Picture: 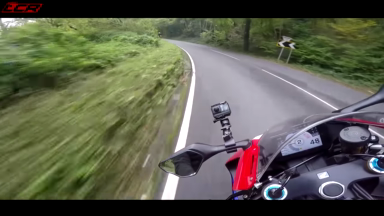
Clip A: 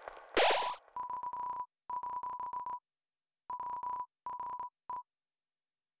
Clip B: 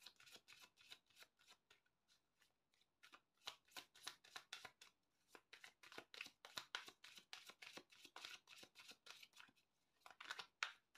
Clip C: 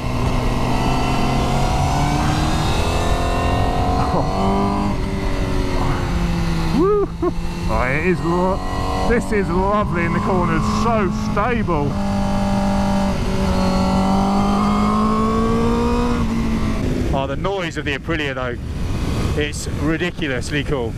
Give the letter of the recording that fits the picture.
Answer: C